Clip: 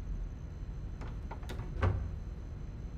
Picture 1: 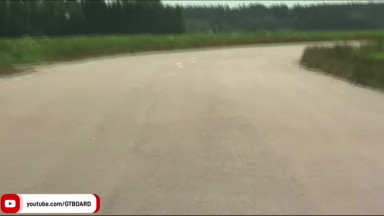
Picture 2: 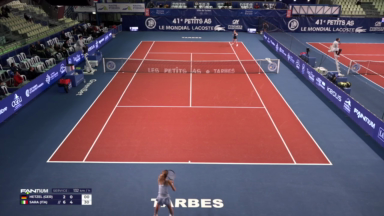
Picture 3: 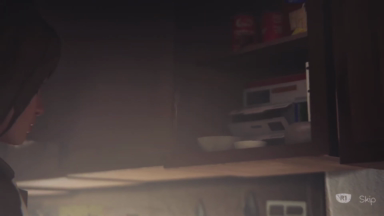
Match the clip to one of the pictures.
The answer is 3